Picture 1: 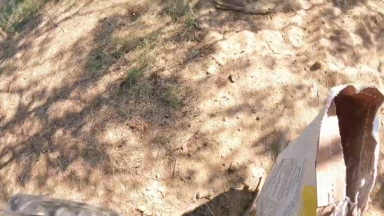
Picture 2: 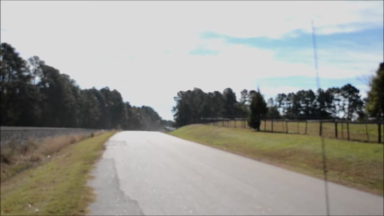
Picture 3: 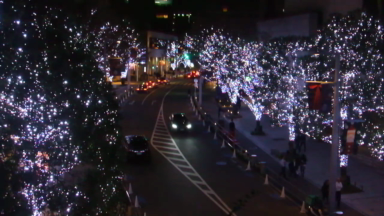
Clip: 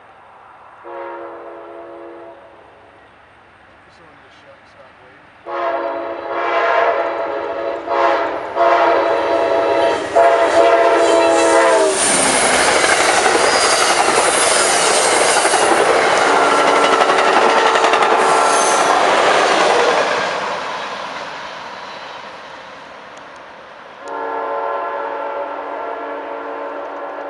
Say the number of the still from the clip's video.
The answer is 2